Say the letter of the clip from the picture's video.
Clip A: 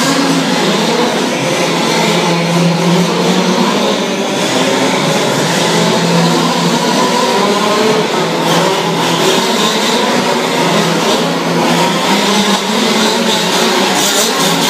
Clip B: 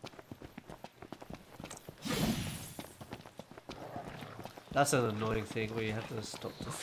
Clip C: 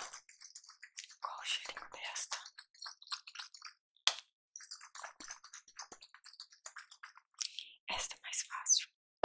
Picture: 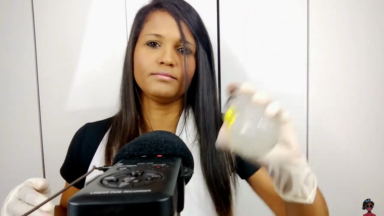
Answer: C